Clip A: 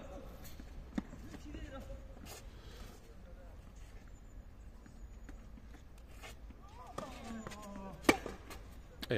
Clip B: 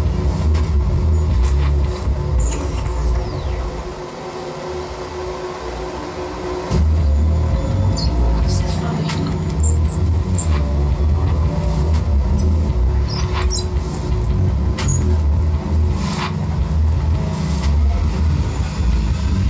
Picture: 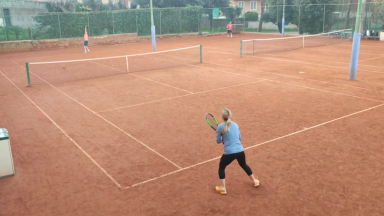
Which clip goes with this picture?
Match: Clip A